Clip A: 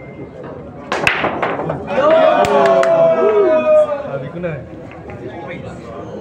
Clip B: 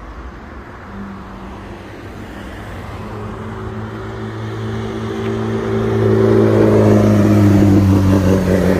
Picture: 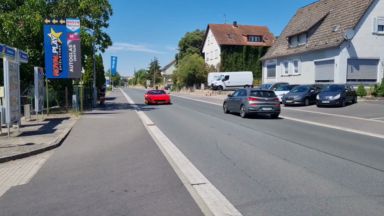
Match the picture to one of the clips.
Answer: B